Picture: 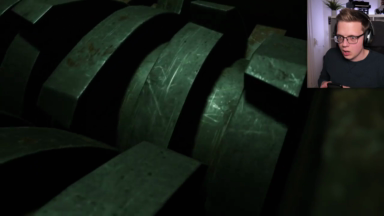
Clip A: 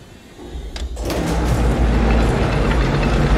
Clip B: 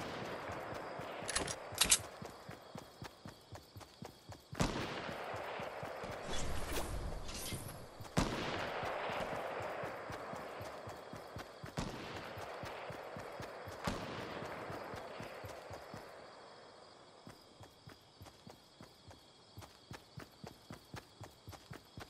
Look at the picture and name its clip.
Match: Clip A